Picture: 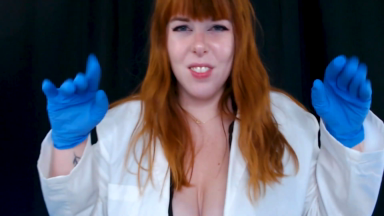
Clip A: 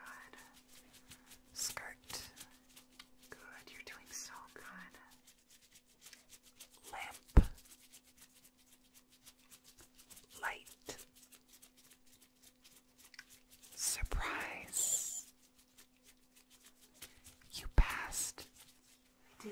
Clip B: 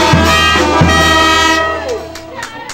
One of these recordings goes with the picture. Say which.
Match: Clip A